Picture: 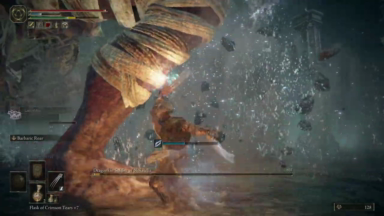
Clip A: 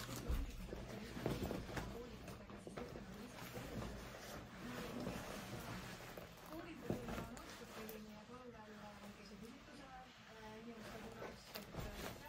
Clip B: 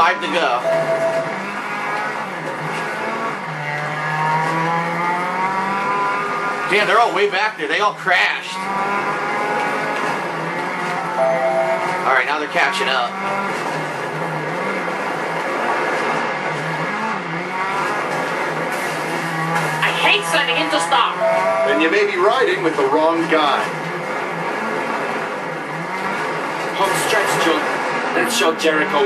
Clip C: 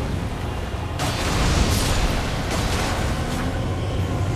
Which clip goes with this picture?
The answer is C